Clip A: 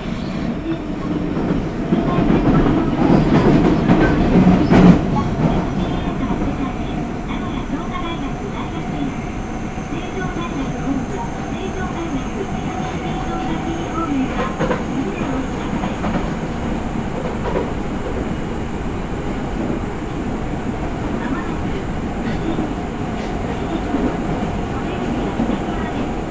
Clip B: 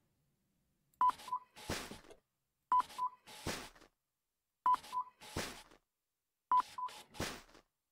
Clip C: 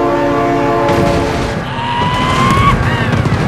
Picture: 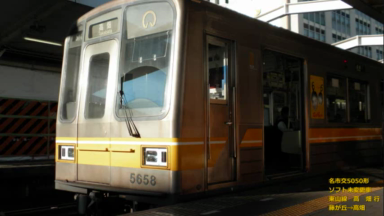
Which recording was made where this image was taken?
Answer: A